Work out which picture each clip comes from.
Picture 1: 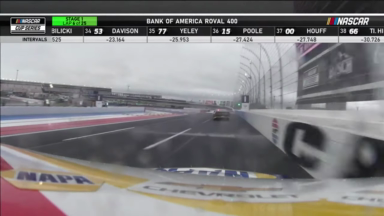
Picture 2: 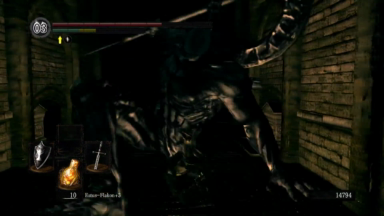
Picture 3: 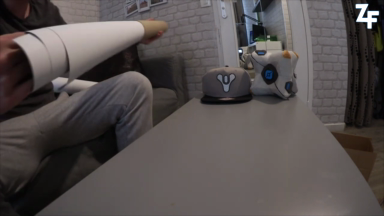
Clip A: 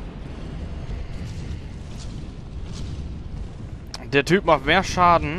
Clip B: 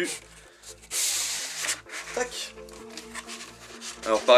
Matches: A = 2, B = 3